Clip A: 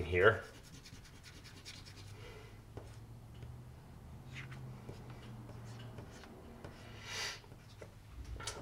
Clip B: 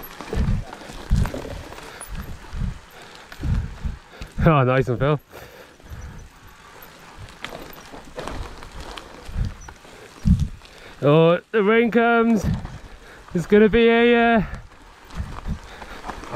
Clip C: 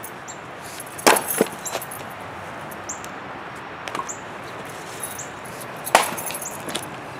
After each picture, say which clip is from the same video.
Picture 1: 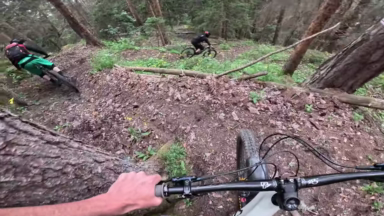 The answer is B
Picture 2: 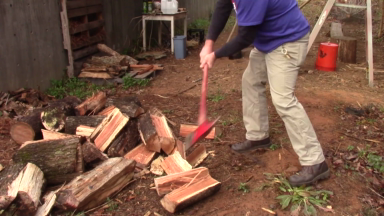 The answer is C